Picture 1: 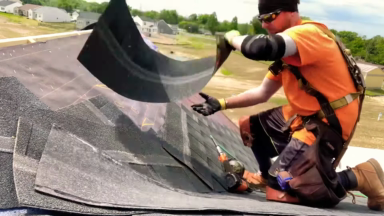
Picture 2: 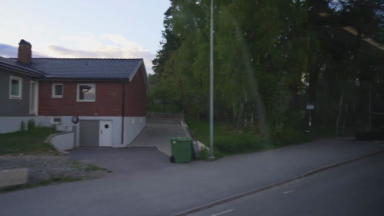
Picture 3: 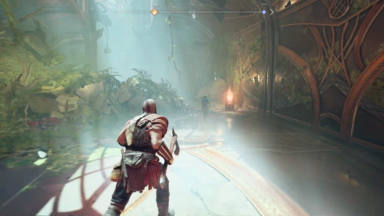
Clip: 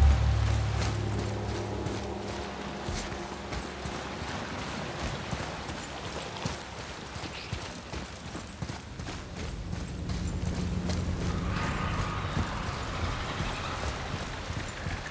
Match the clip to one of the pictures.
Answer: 3